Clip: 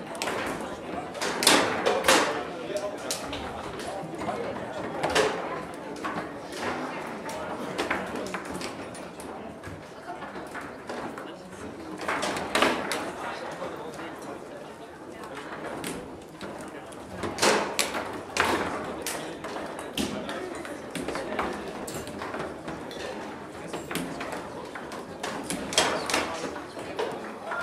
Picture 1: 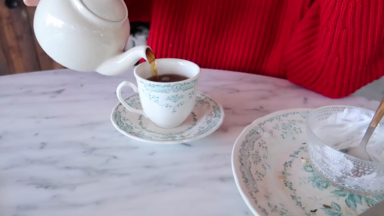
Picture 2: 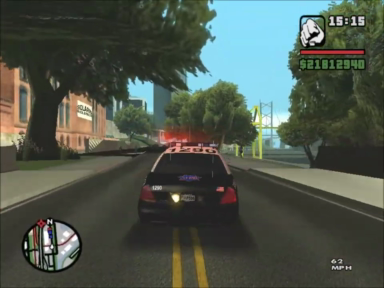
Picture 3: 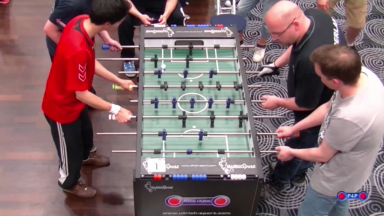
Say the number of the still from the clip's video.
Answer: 3